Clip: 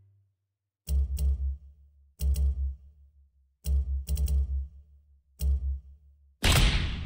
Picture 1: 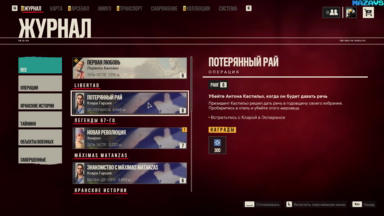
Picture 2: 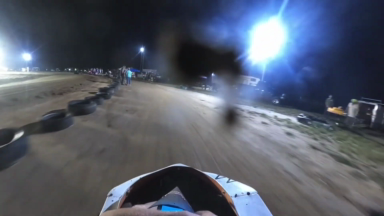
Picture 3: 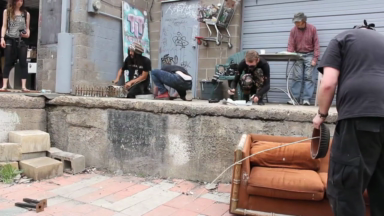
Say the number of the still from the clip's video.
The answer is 1